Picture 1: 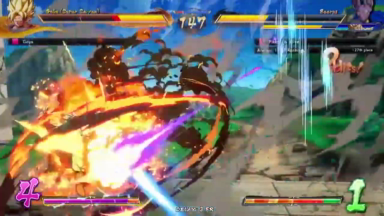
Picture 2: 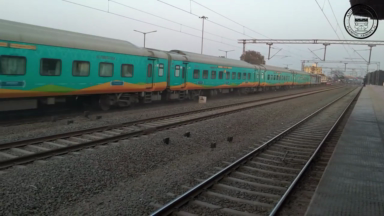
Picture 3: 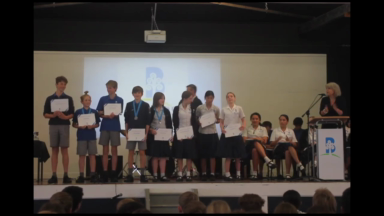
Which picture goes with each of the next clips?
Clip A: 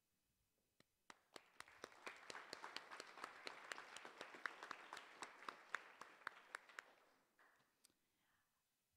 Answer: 3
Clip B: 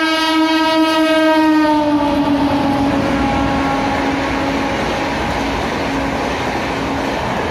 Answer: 2